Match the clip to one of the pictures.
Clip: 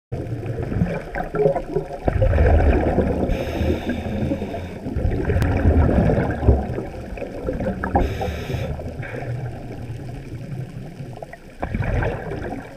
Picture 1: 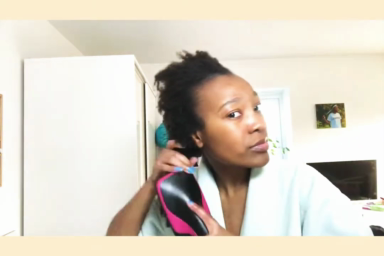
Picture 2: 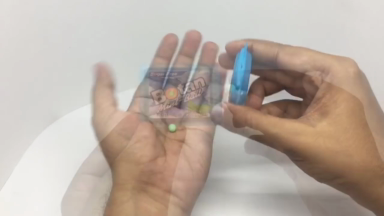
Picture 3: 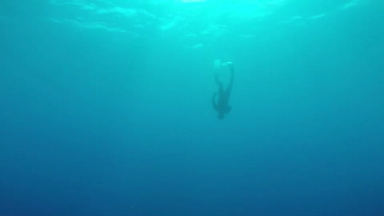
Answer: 3